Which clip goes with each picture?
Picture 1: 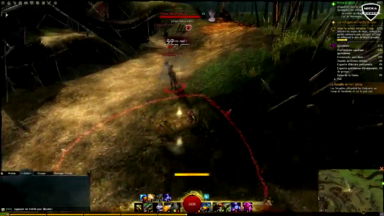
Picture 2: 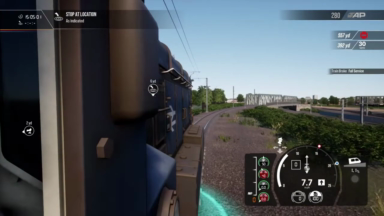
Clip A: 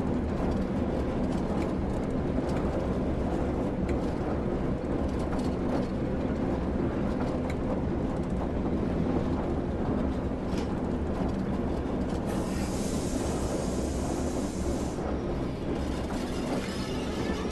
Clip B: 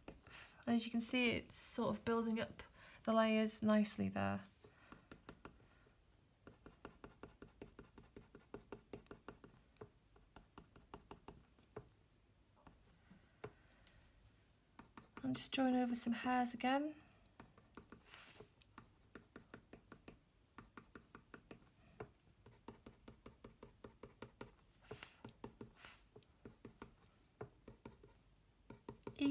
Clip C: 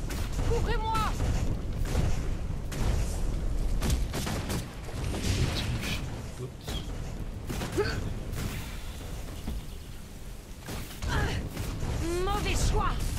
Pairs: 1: C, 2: A